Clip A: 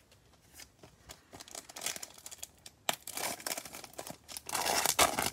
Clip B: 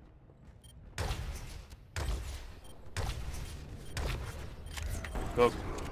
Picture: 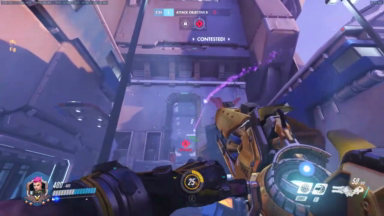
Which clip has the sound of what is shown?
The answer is B